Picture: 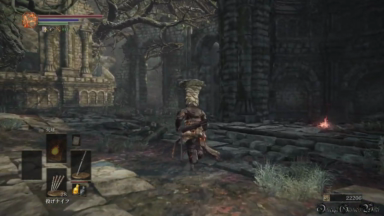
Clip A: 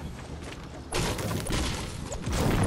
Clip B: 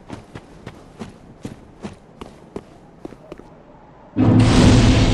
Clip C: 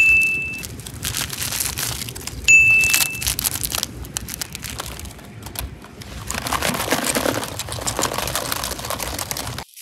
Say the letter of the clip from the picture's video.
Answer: B